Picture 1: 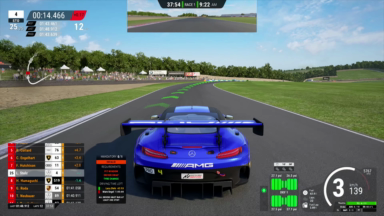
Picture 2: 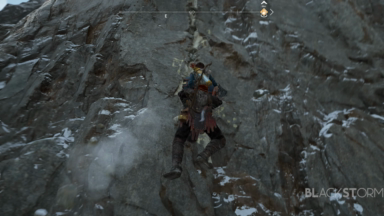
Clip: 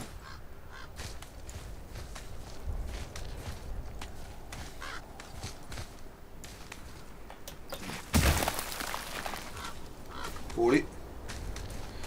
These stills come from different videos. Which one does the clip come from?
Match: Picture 2